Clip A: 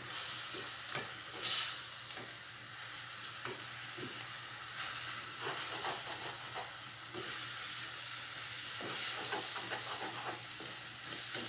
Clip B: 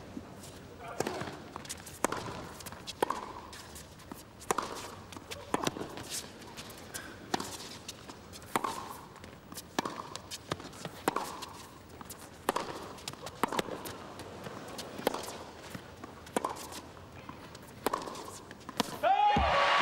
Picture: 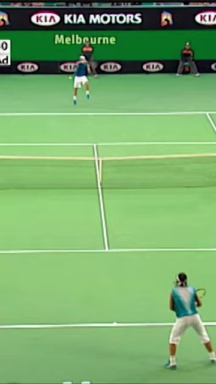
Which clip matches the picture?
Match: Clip B